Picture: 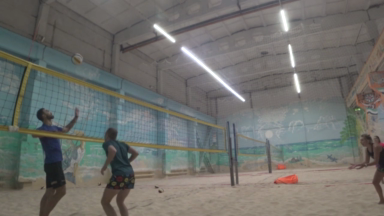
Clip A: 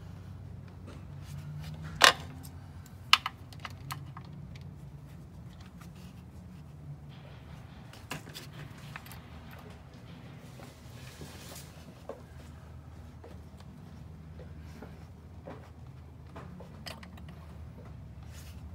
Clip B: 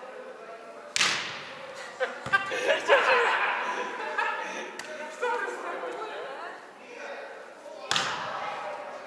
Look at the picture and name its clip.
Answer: B